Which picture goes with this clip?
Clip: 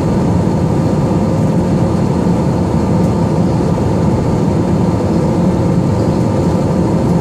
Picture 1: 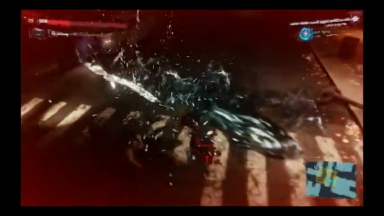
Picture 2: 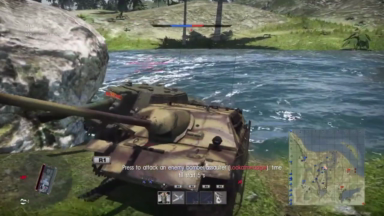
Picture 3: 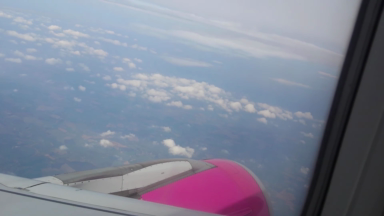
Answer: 3